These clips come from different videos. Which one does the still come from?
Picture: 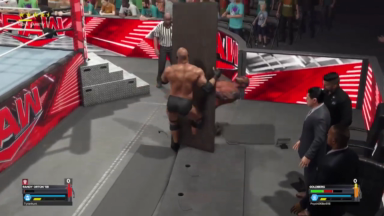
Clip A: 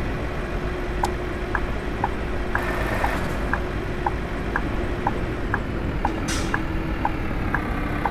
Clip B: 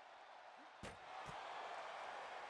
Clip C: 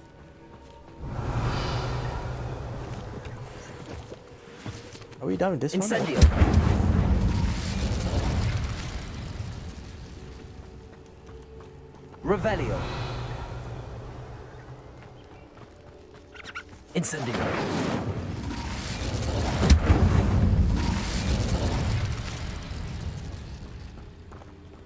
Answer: B